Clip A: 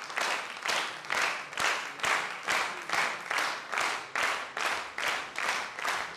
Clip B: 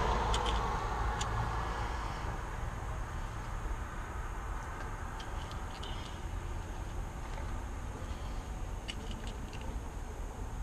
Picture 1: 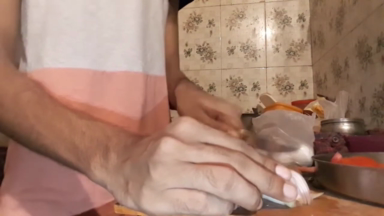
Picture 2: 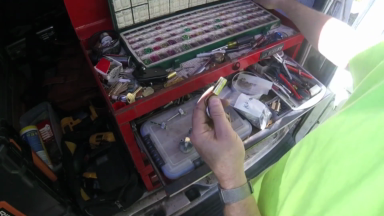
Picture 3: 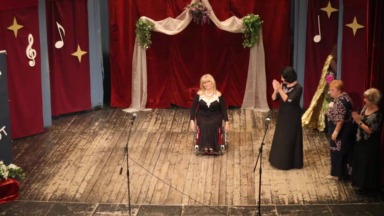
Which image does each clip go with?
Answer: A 3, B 2